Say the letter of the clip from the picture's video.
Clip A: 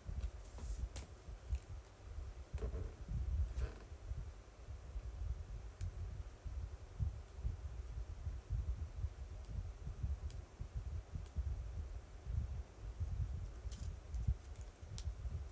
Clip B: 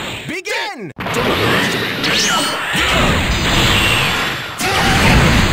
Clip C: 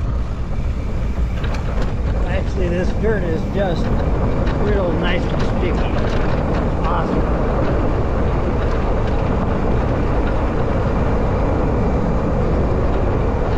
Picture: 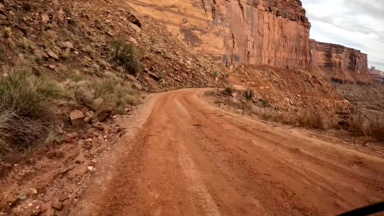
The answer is C